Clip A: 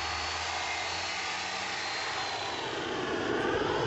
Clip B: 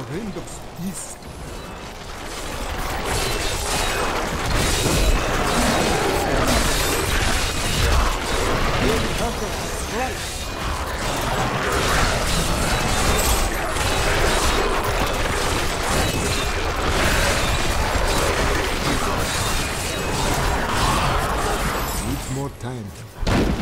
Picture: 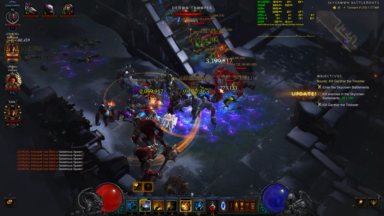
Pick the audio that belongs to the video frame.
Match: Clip B